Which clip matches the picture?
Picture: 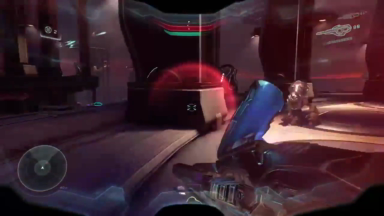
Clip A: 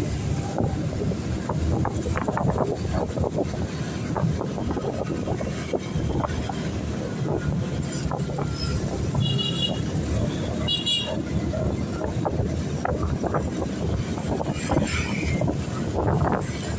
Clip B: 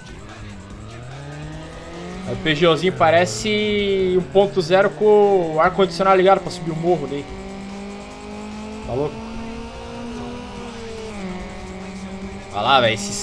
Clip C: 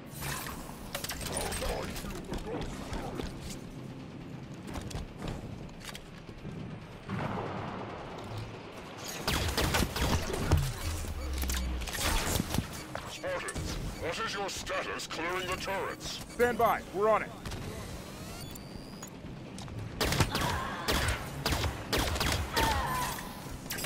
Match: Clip C